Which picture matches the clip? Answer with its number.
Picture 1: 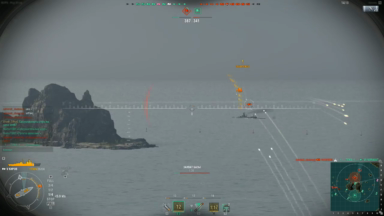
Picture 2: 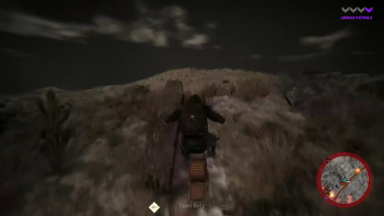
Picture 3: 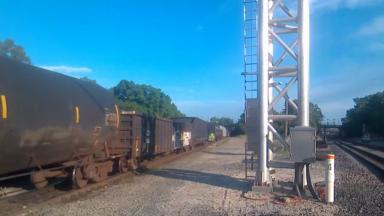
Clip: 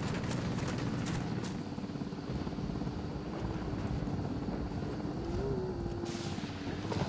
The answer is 2